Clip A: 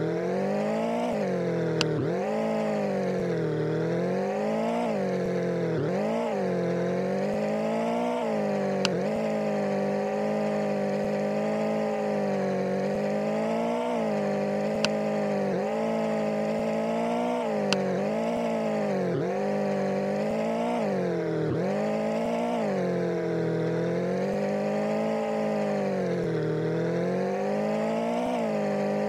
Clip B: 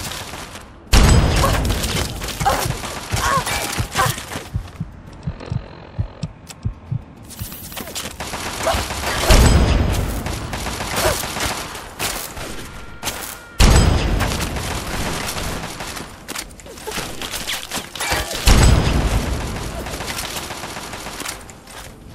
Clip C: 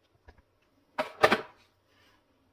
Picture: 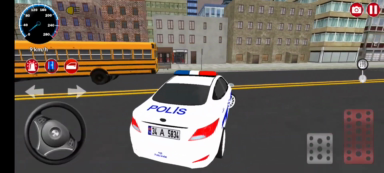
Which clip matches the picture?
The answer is A